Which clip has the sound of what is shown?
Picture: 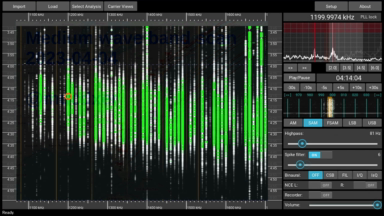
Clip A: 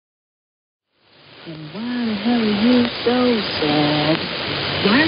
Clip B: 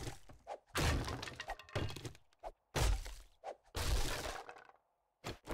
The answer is A